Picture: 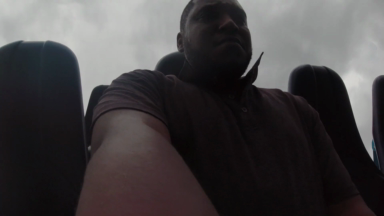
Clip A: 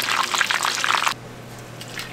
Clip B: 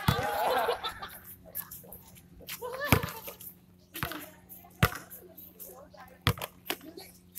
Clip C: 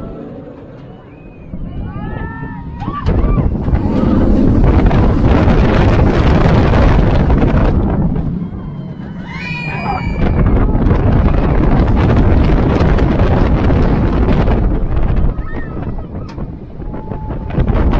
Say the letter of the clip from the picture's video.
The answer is C